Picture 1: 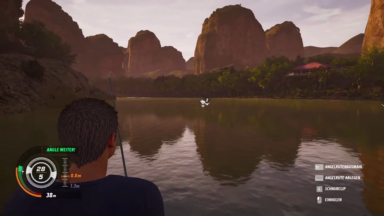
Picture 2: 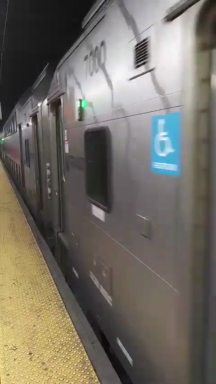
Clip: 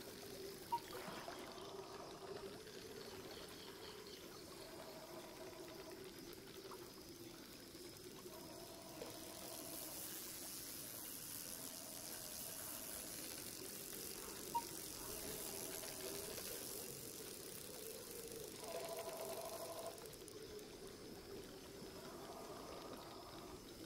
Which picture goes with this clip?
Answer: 1